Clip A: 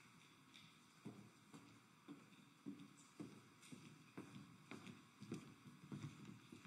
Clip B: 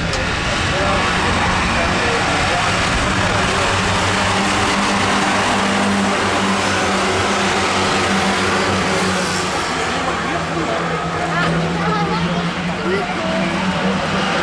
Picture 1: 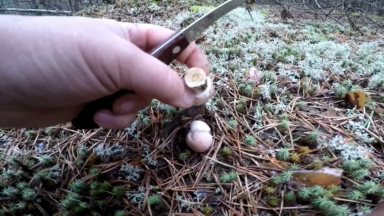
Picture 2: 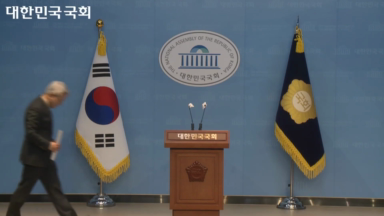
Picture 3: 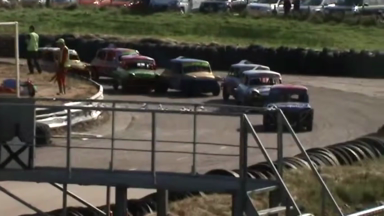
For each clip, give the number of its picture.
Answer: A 2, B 3